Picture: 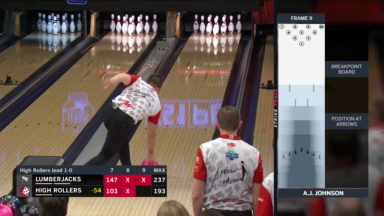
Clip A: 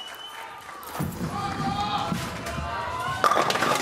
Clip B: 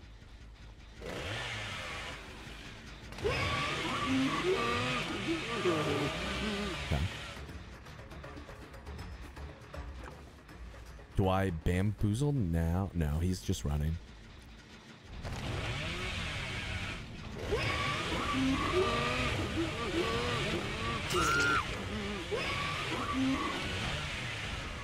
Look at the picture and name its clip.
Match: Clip A